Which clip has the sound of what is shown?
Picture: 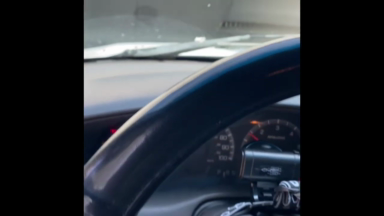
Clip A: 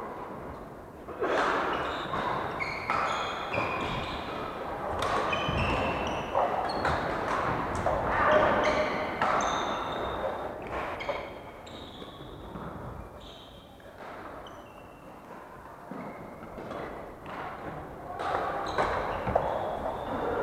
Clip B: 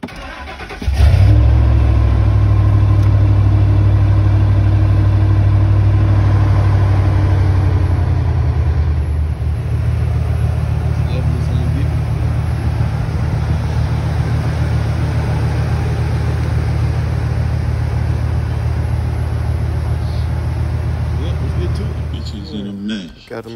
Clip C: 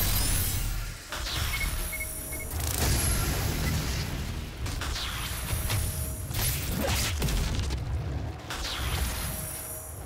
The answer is B